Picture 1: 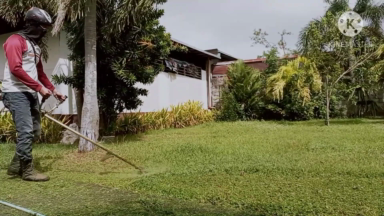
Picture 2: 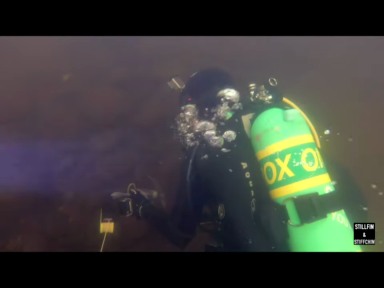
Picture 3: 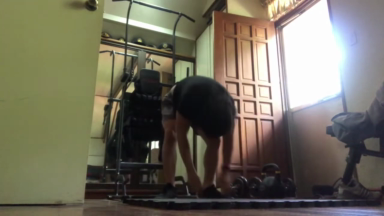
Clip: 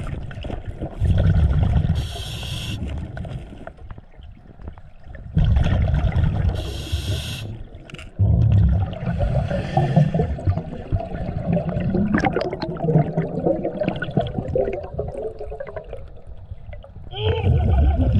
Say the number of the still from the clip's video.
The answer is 2